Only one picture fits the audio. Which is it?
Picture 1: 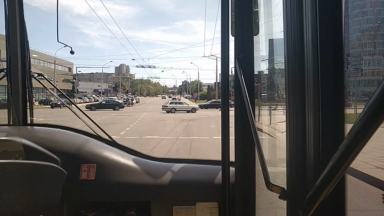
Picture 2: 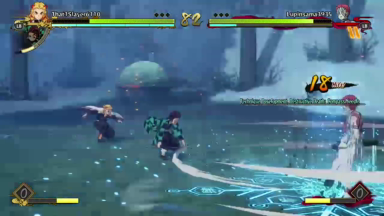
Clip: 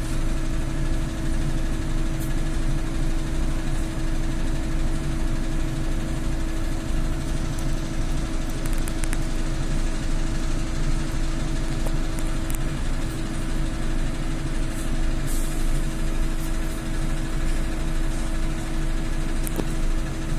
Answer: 1